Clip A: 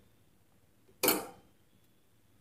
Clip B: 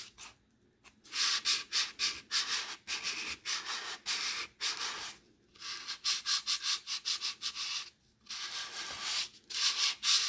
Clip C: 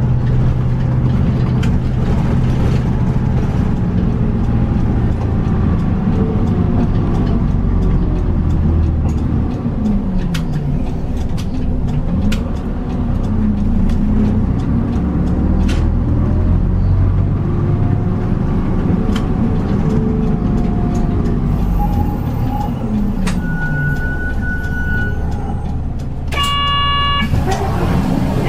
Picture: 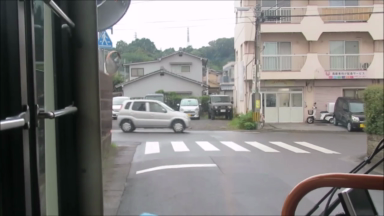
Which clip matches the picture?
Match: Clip C